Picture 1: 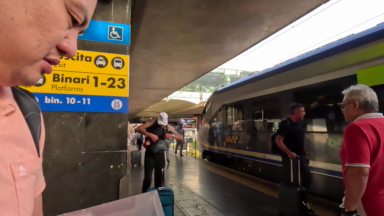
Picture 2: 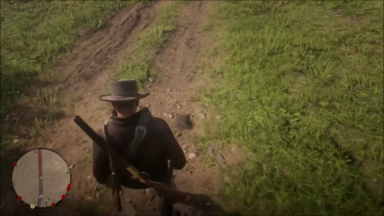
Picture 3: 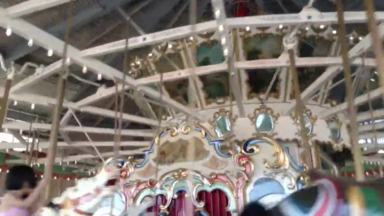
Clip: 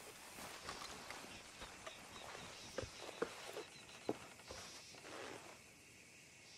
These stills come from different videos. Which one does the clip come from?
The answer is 2